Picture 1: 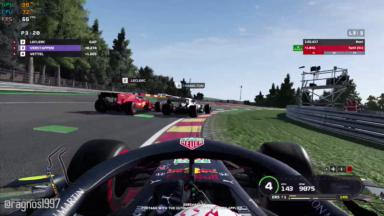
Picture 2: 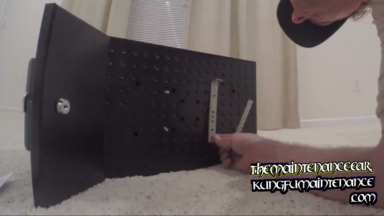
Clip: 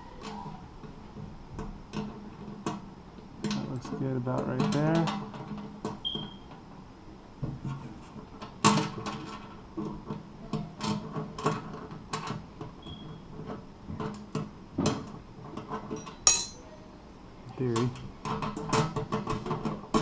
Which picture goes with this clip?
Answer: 2